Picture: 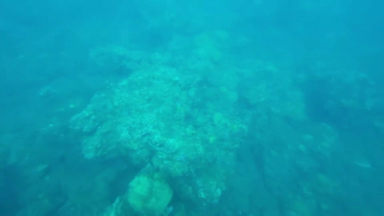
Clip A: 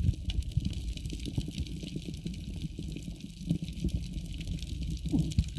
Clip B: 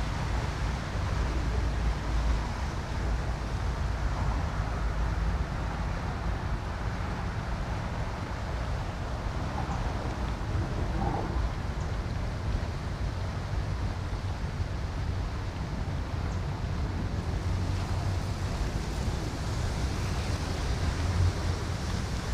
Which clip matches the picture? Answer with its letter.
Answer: A